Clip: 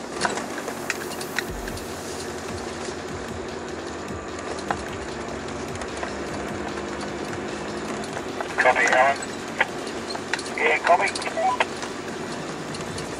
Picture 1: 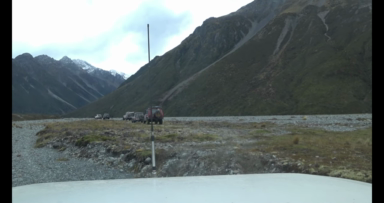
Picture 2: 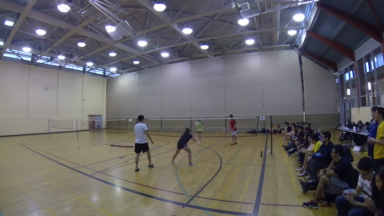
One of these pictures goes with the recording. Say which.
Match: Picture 1